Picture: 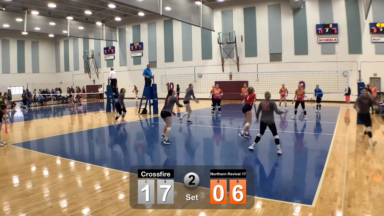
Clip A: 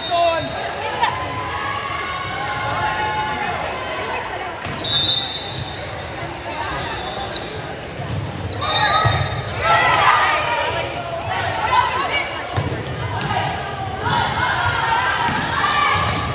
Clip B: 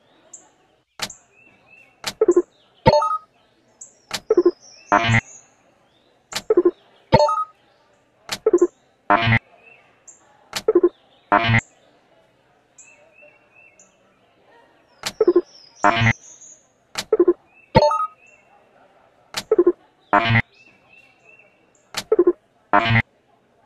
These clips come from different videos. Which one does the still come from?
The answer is A